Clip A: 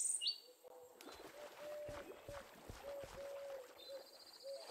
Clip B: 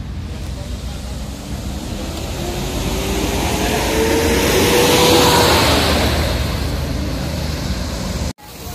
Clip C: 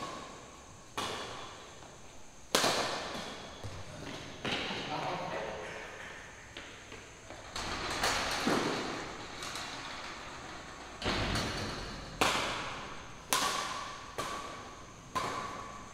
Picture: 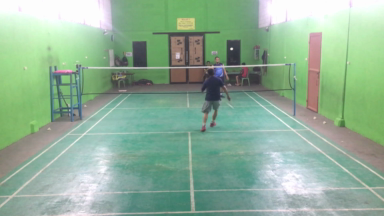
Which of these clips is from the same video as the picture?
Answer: C